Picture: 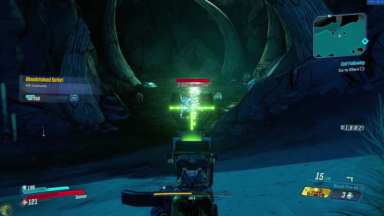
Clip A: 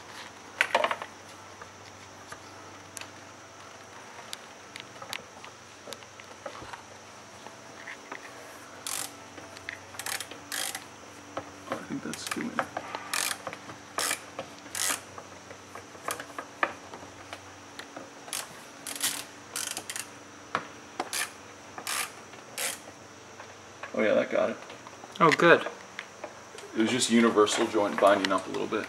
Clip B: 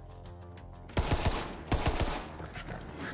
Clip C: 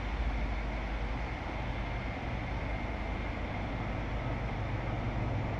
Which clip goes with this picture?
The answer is B